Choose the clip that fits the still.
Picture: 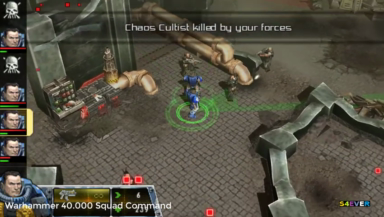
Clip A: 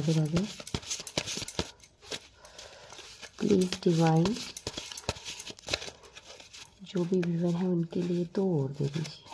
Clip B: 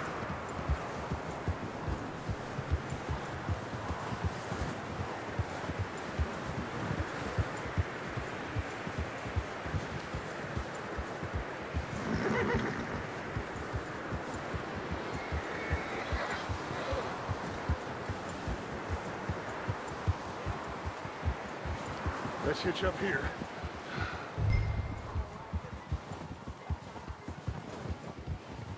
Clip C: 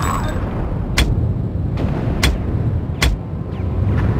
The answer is C